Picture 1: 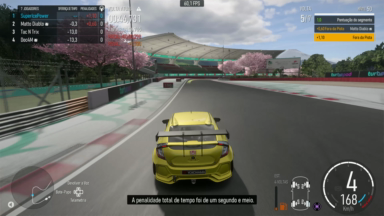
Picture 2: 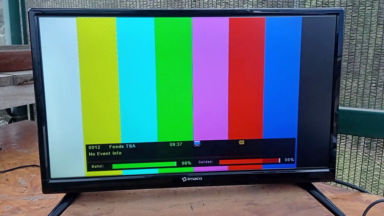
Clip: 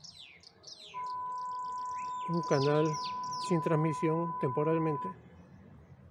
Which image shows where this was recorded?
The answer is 2